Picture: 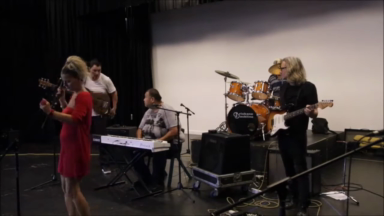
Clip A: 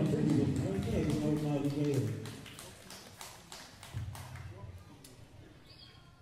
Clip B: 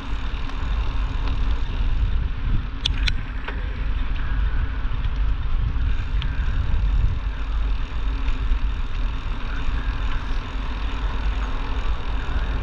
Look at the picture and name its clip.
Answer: A